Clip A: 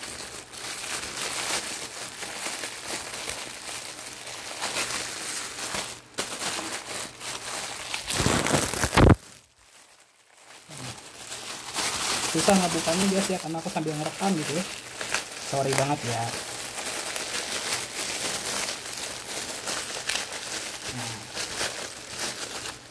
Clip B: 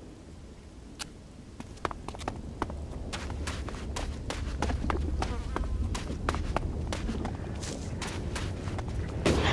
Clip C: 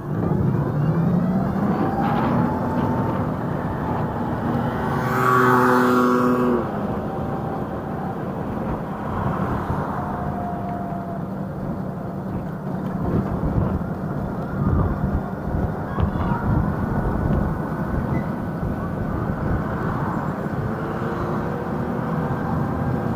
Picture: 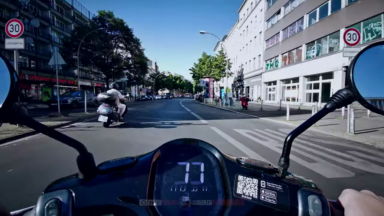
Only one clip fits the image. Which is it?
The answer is C